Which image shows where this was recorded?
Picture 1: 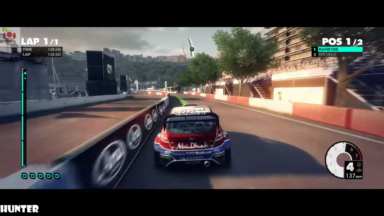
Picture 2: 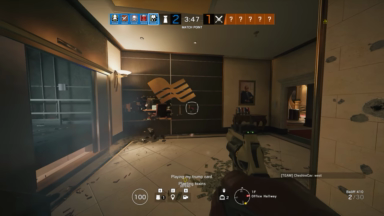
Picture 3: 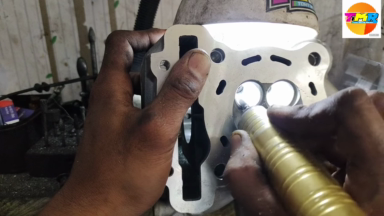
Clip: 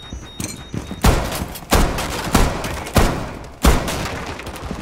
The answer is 2